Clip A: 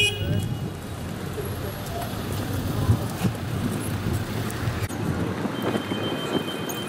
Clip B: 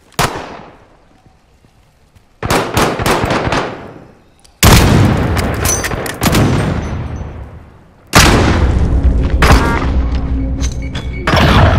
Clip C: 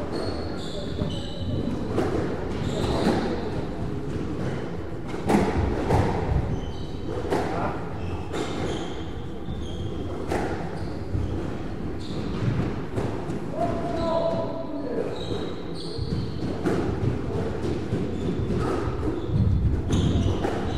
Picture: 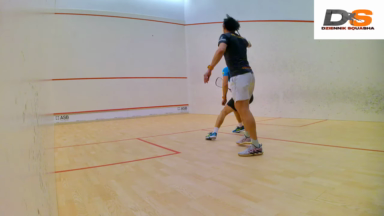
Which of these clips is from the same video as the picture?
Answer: C